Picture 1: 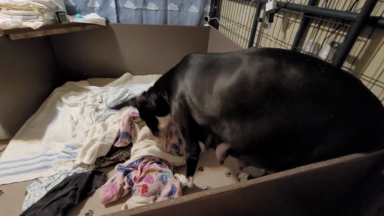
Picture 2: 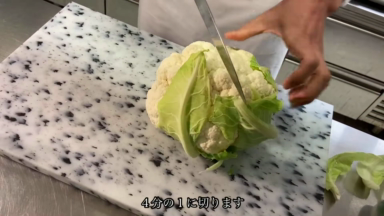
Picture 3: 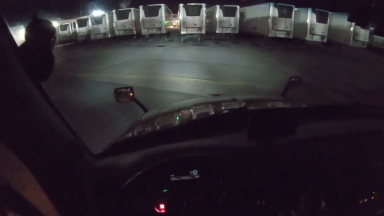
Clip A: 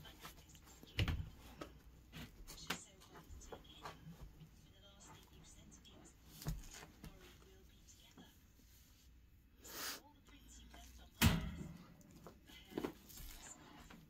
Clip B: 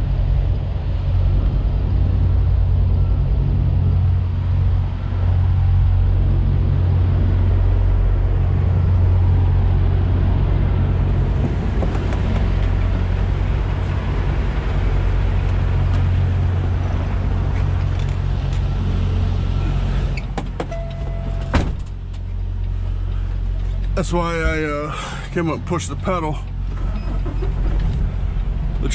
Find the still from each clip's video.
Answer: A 1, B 3